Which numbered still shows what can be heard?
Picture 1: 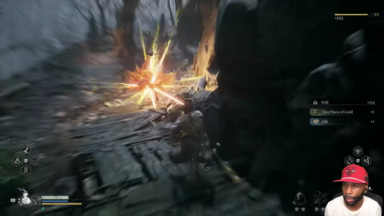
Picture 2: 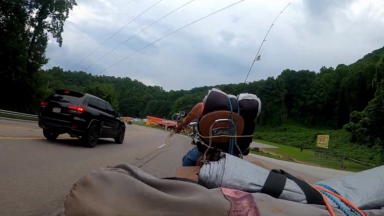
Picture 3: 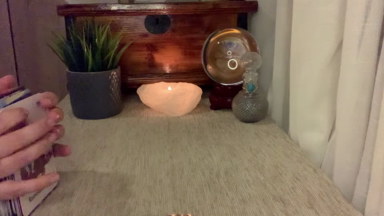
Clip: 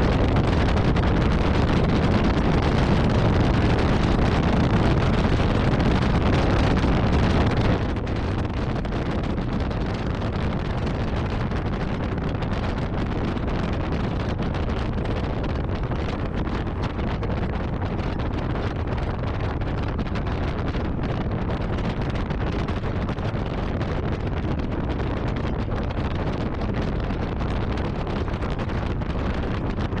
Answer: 2